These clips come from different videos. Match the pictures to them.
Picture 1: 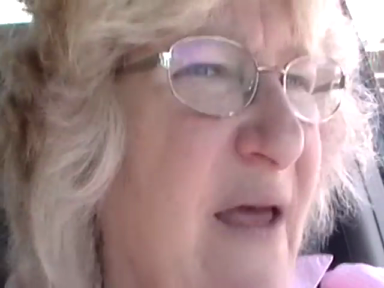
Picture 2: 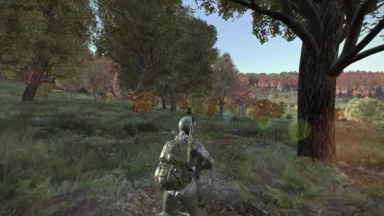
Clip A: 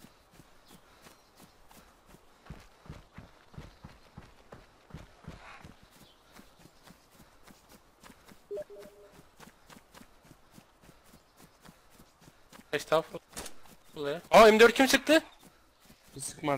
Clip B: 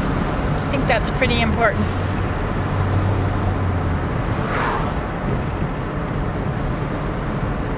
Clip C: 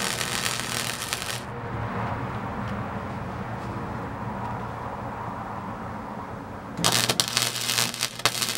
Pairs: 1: B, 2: A